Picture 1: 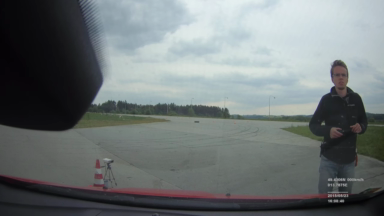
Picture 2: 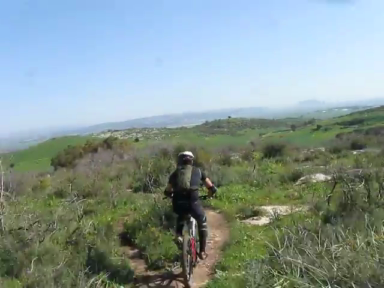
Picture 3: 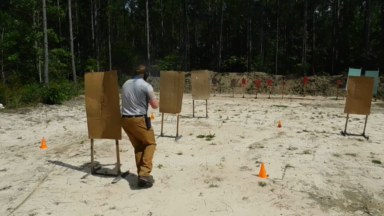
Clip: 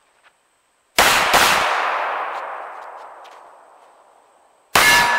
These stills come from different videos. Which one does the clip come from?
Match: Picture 3